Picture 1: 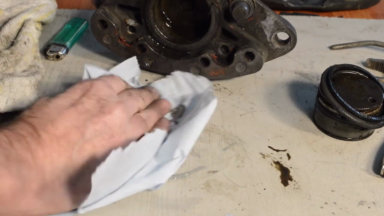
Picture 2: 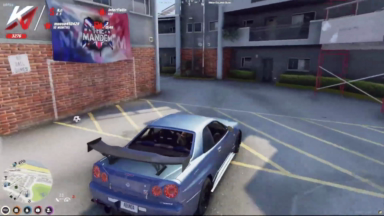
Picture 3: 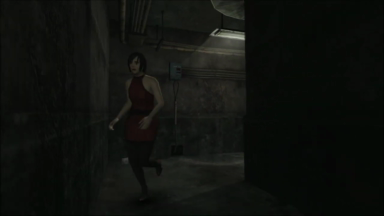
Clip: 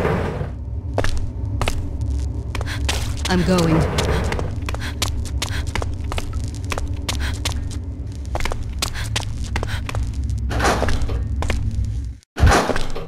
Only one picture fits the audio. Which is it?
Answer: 3